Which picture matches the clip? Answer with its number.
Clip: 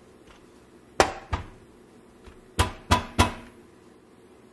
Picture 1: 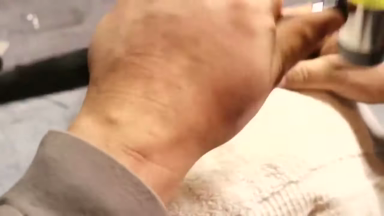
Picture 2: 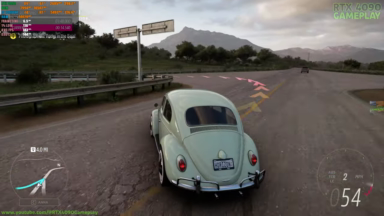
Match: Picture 1